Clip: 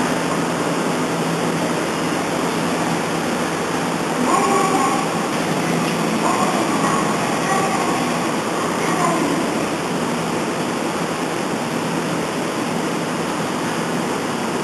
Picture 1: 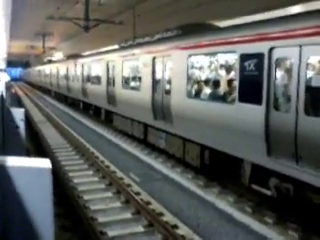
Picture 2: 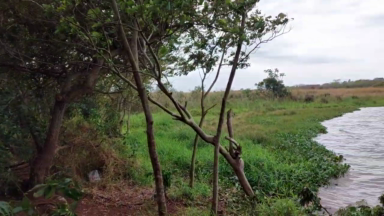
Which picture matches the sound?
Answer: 1